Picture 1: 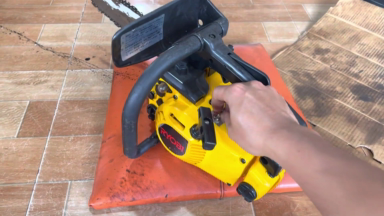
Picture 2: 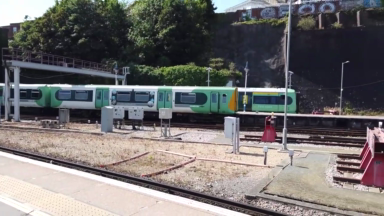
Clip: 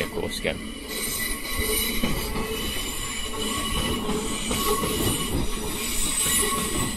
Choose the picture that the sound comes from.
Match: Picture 2